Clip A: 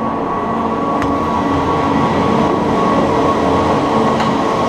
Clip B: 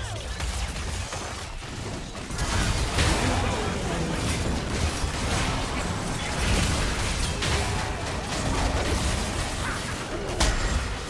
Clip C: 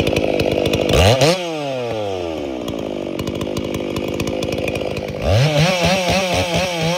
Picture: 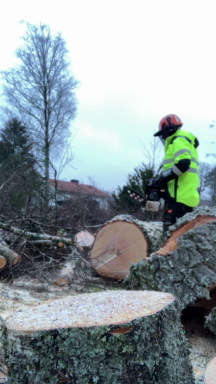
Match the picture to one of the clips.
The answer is C